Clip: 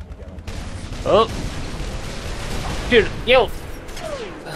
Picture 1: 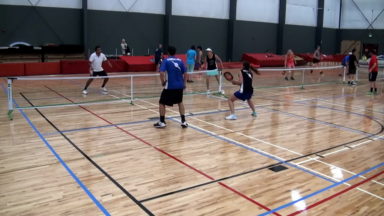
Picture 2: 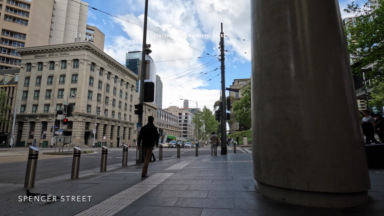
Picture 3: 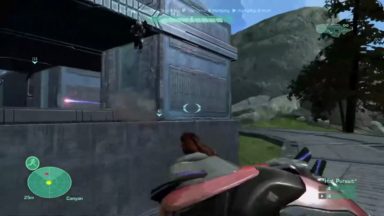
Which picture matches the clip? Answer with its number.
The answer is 3